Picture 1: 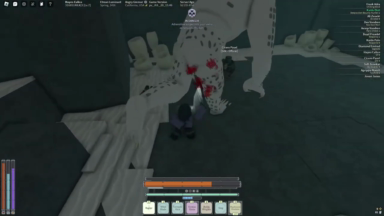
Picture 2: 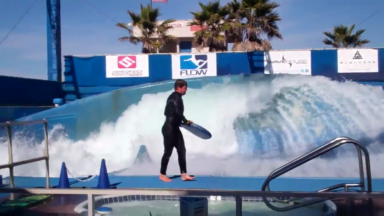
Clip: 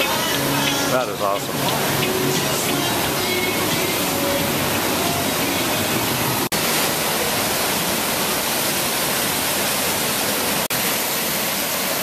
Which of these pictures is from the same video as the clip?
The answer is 2